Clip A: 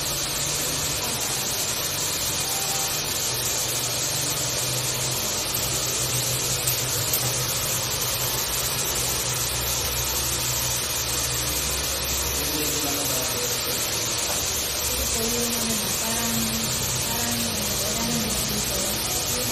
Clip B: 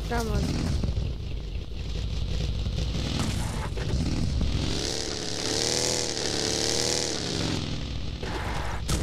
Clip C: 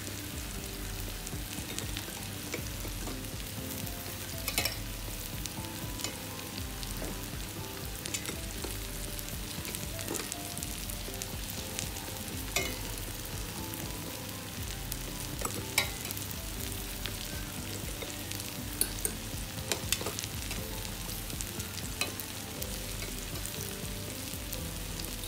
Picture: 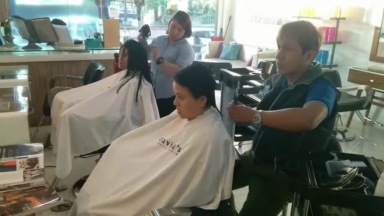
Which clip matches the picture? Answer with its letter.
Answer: A